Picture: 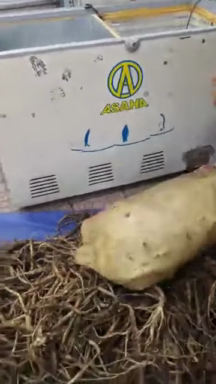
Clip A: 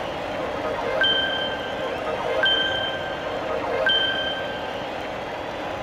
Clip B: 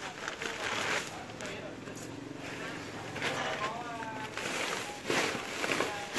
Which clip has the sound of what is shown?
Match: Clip B